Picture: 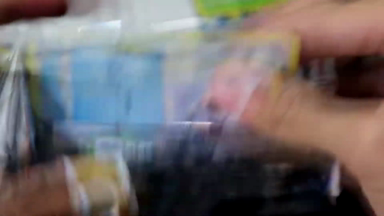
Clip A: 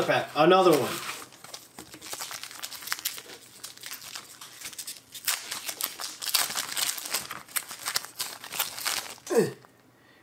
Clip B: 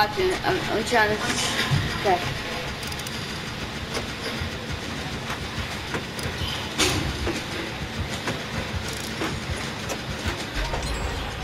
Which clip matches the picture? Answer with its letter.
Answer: A